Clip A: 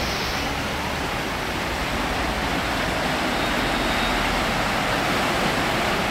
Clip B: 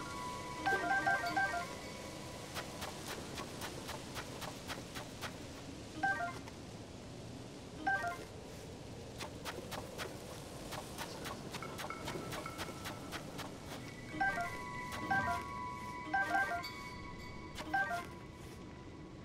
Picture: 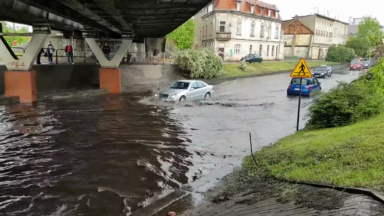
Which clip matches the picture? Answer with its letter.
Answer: A